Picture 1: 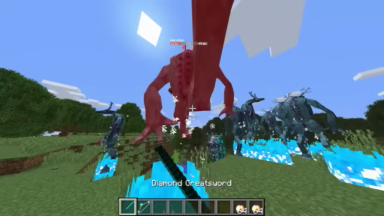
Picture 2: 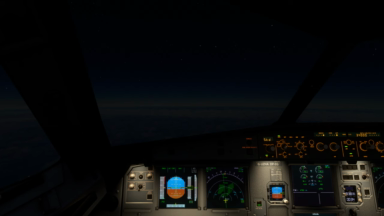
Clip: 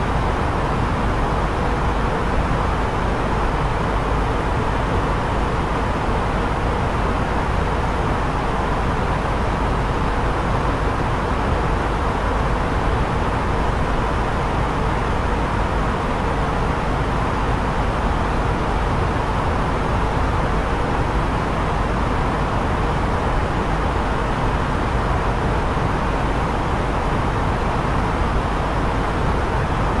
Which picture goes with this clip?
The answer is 2